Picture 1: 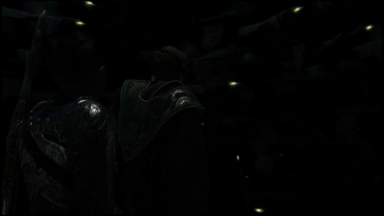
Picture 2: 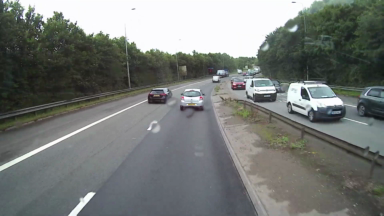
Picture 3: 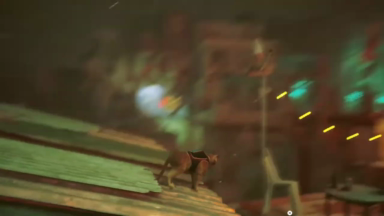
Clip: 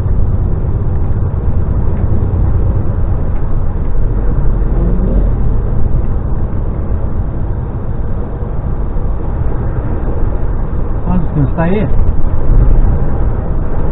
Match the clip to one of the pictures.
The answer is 2